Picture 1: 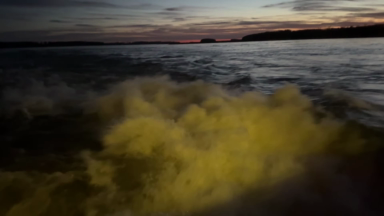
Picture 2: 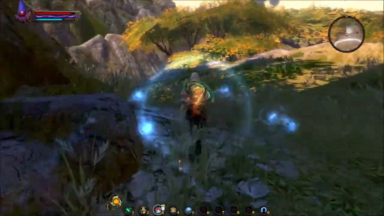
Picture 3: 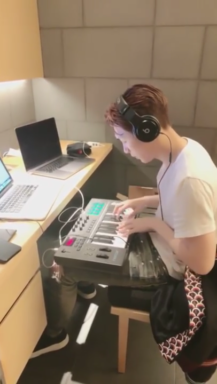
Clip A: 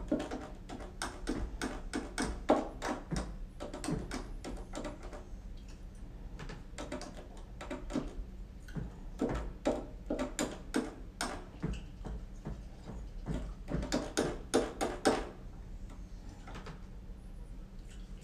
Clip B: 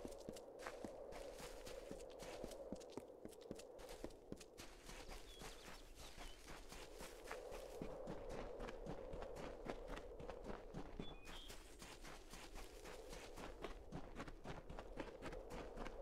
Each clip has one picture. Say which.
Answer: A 3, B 2